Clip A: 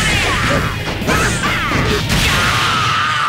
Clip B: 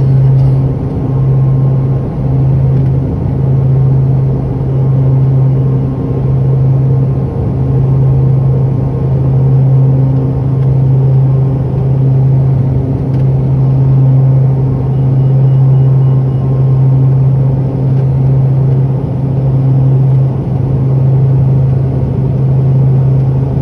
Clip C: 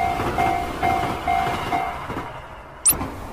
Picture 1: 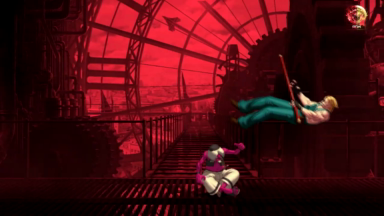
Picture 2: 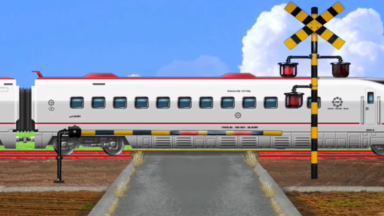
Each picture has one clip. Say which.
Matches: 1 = A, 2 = C